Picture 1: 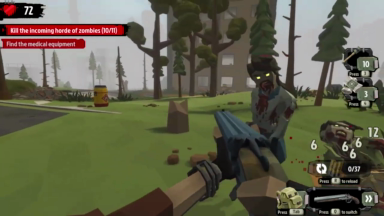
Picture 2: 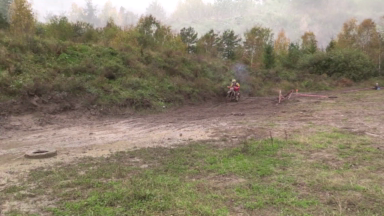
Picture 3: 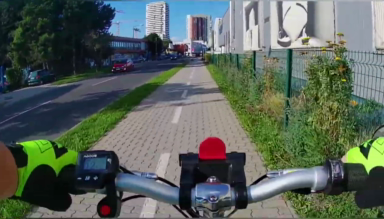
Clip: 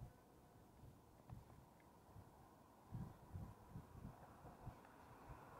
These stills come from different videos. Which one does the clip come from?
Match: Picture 3